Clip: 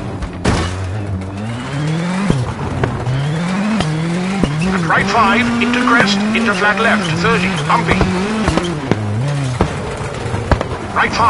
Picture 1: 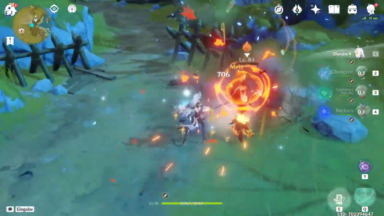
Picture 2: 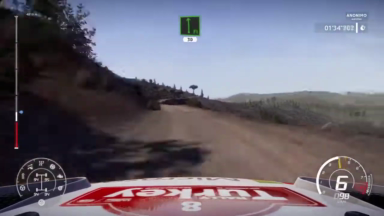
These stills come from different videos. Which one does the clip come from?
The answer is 2